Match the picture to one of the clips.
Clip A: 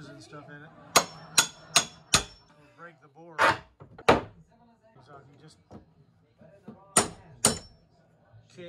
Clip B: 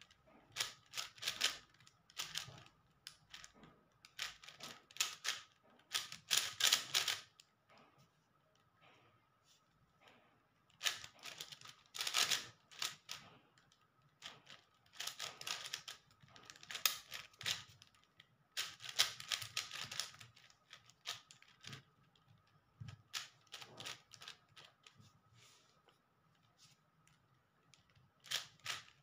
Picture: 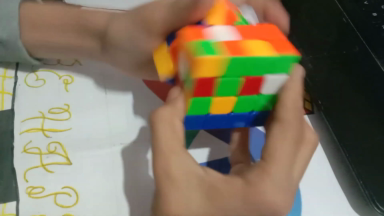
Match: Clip B